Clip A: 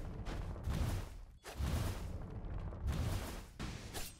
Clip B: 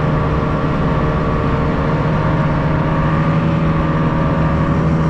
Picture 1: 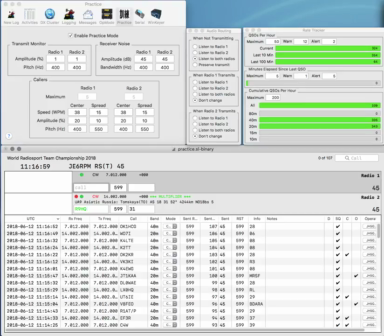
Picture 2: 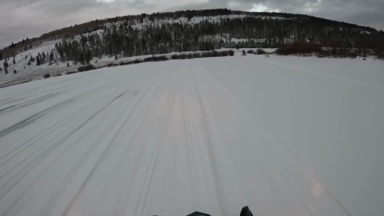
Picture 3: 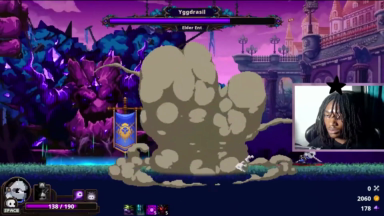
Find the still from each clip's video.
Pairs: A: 3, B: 2